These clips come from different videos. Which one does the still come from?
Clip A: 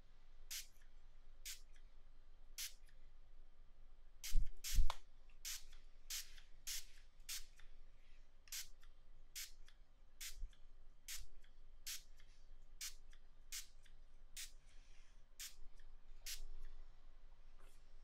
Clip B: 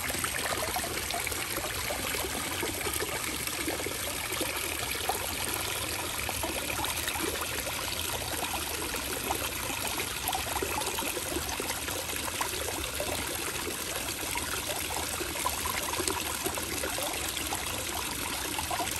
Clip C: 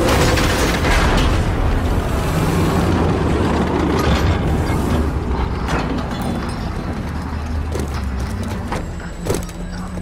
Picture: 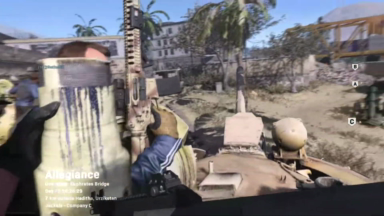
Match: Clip C